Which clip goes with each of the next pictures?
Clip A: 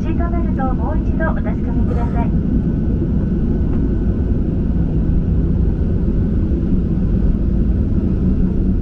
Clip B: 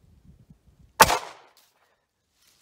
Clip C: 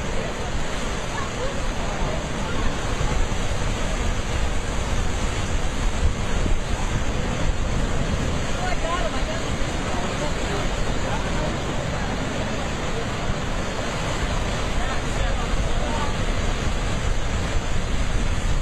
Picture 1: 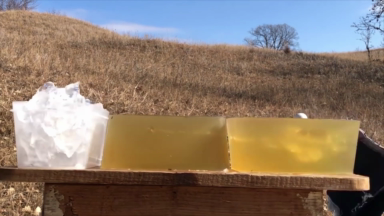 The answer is B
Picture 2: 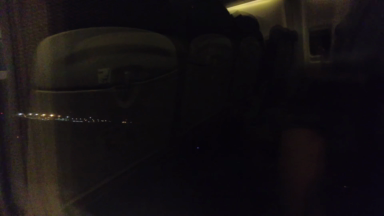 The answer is A